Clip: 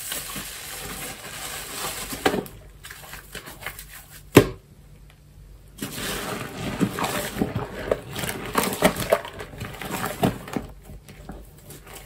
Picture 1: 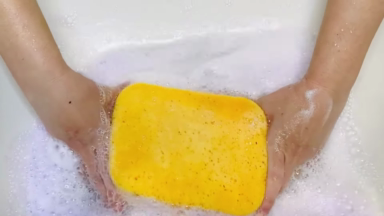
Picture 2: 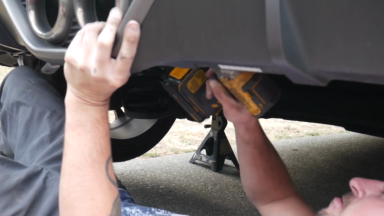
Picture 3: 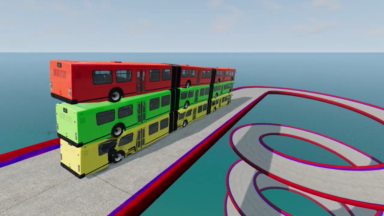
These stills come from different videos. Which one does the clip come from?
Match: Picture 1